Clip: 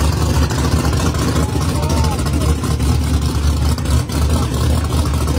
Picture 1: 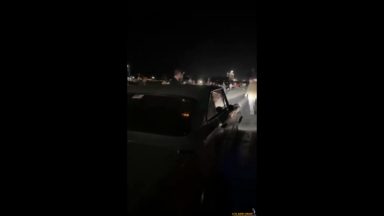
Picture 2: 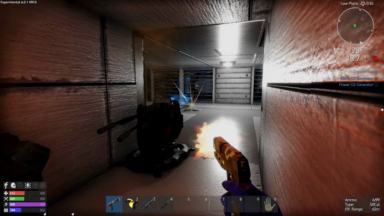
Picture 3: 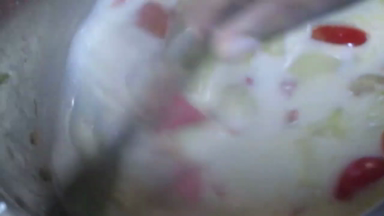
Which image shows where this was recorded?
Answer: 1